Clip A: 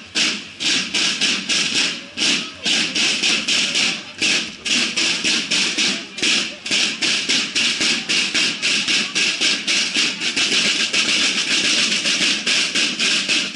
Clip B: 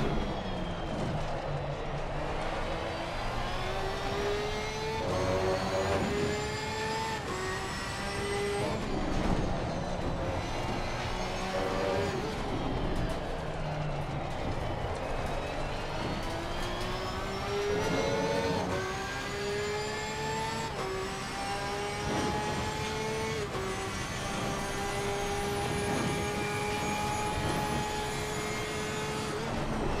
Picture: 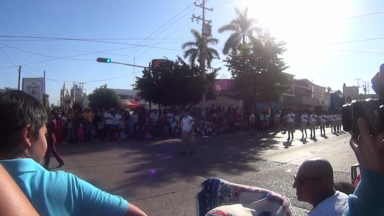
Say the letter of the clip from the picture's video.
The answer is A